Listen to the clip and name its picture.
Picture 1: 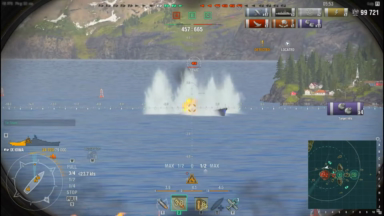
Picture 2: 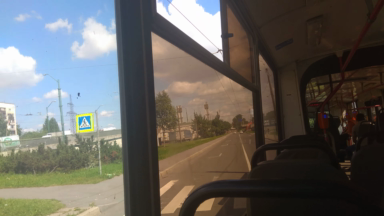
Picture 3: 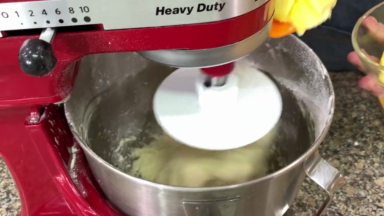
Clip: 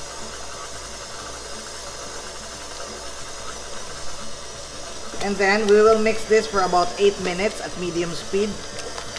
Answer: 3